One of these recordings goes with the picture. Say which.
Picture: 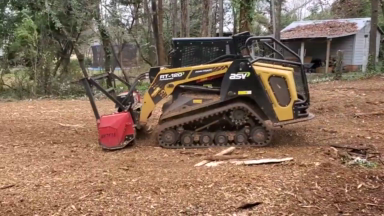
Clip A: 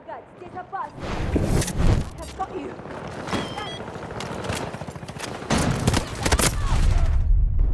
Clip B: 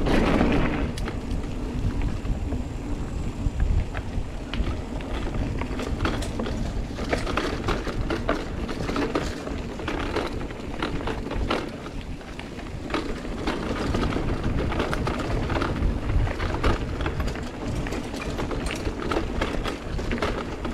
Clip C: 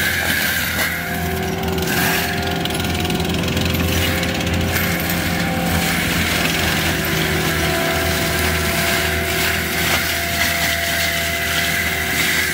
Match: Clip C